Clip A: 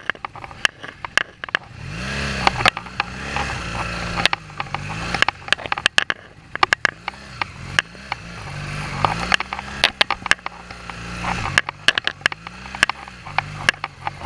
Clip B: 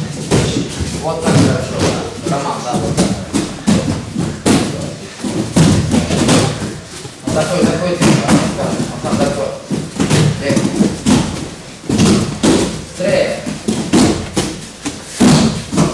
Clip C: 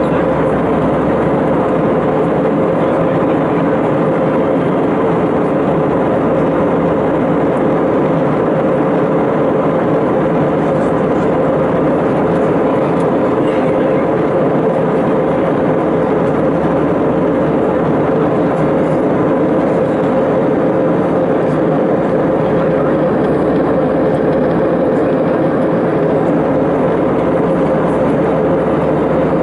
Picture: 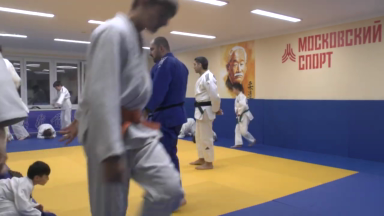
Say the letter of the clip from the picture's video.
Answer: B